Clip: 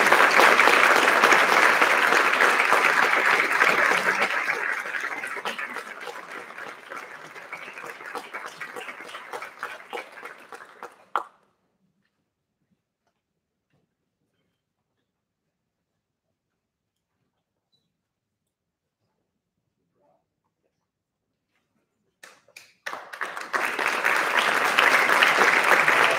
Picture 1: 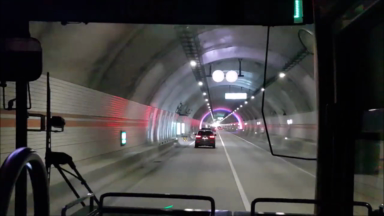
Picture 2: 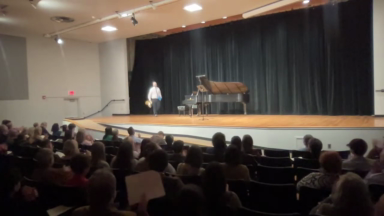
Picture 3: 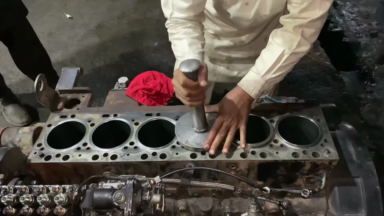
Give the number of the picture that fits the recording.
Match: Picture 2